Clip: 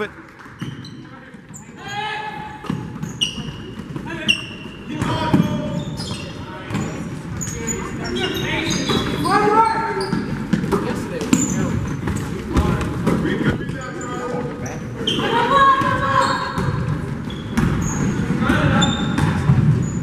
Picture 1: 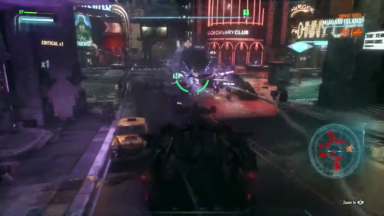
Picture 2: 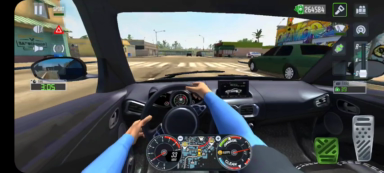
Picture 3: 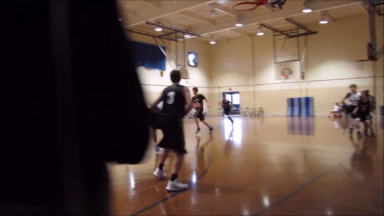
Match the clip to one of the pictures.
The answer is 3